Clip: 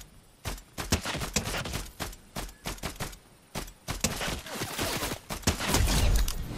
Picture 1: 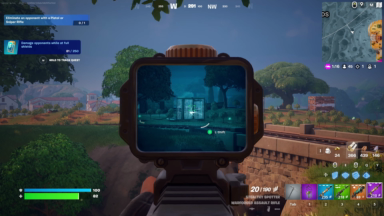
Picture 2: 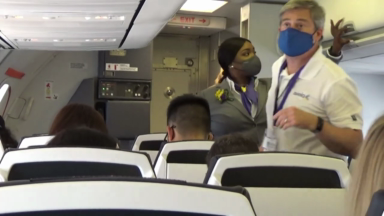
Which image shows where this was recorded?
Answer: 1